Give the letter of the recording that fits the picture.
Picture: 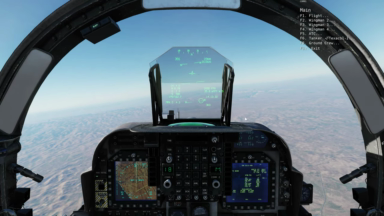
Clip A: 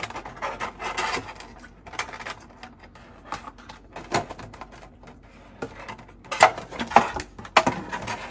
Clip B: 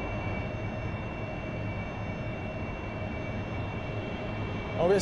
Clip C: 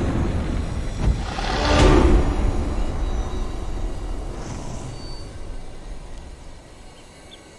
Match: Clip B